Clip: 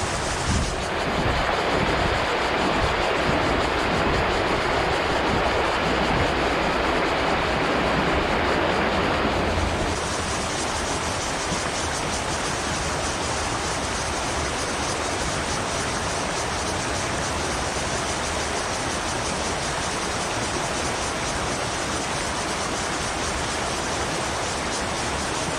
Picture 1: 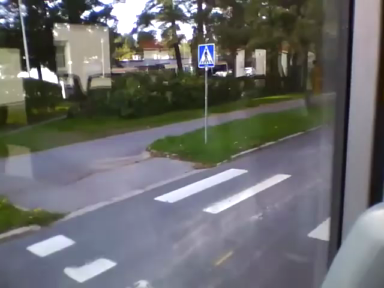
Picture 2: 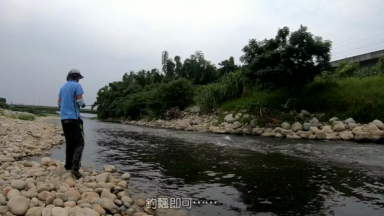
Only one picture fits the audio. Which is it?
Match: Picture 2